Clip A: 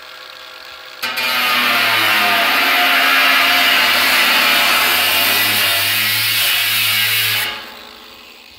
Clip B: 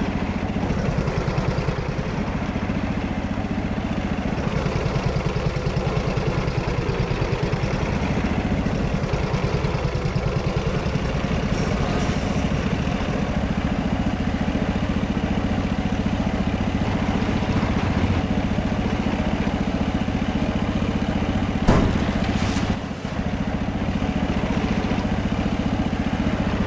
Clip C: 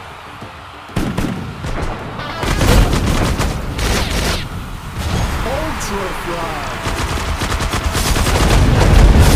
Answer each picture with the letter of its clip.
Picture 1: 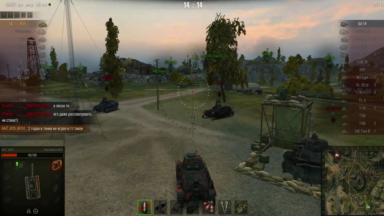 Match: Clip B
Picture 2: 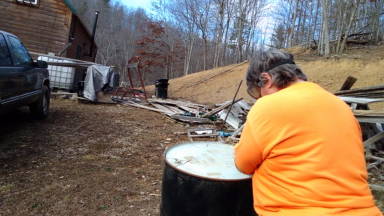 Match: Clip A